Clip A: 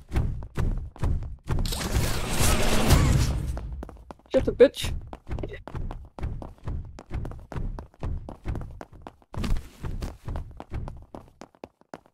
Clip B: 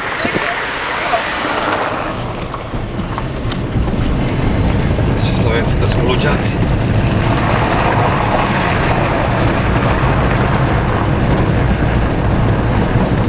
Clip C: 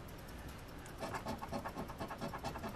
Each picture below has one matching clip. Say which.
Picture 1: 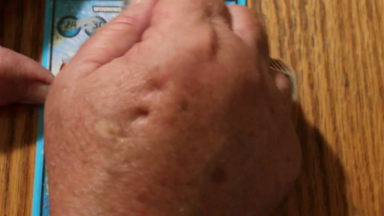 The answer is C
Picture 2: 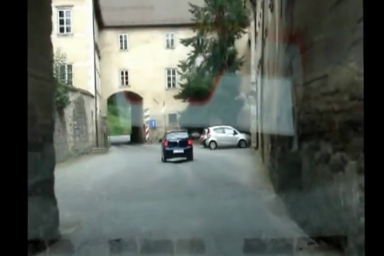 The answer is B